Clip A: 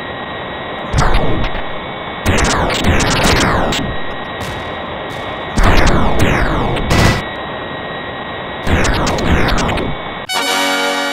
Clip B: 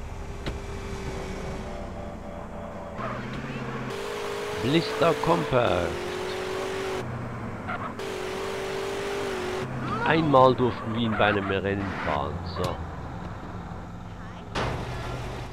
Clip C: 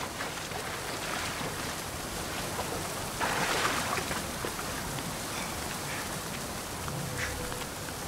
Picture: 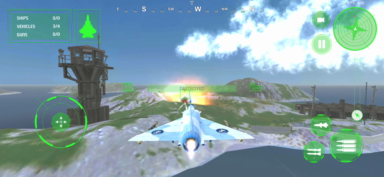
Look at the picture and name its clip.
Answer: A